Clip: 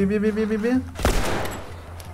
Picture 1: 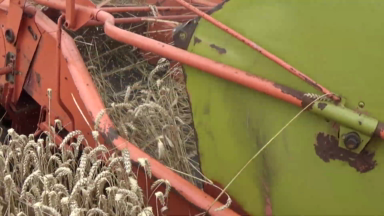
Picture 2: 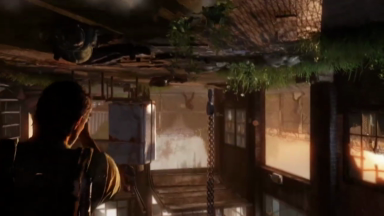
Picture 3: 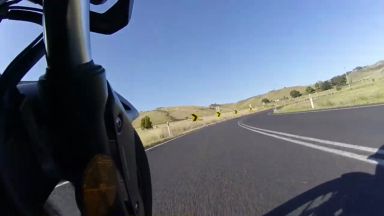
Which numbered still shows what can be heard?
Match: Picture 2